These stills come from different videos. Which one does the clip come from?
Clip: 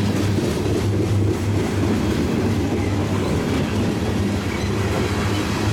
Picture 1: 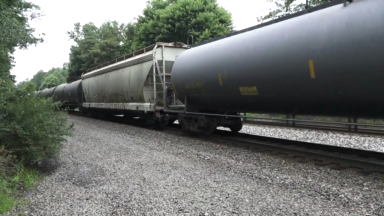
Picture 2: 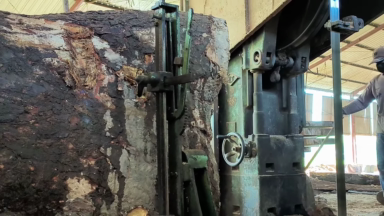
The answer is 1